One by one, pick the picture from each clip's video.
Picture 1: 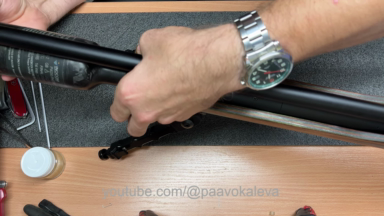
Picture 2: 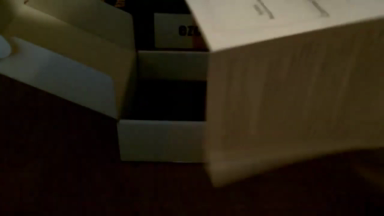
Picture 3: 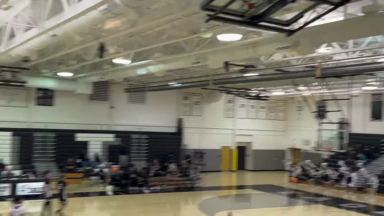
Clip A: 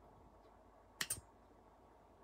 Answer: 1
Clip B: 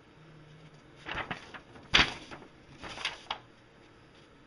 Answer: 2